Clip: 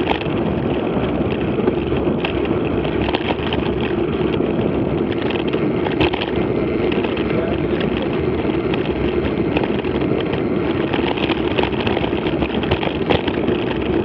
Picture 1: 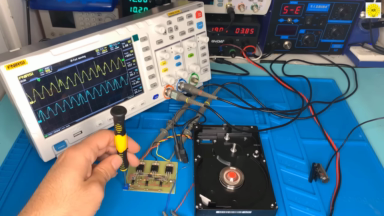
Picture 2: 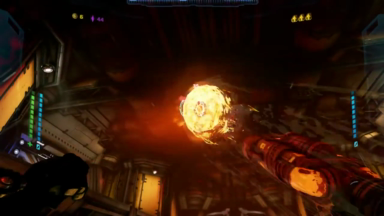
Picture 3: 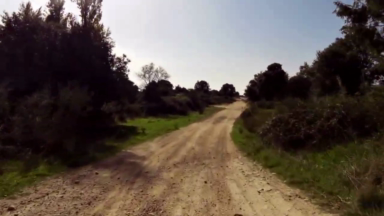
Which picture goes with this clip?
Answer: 3